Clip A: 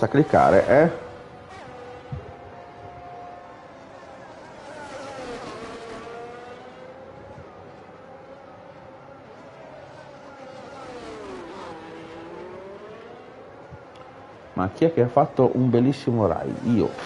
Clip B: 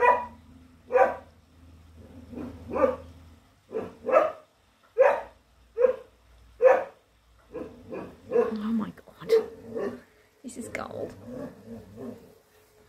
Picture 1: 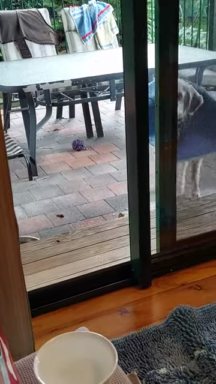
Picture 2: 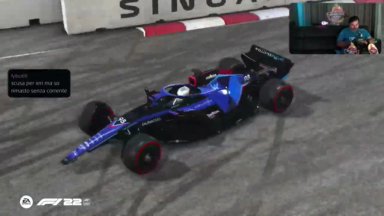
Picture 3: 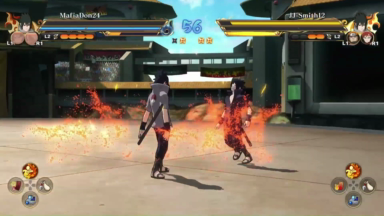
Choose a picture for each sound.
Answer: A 2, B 1